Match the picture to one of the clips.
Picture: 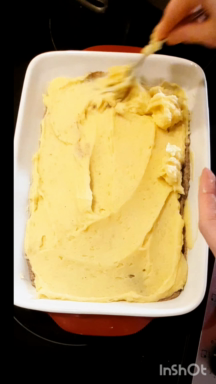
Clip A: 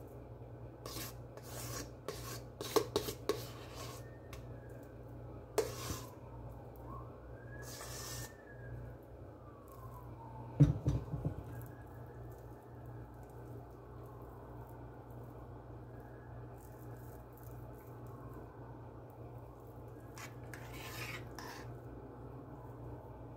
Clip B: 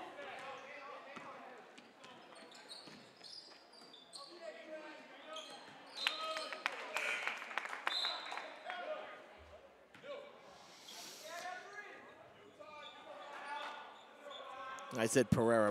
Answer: A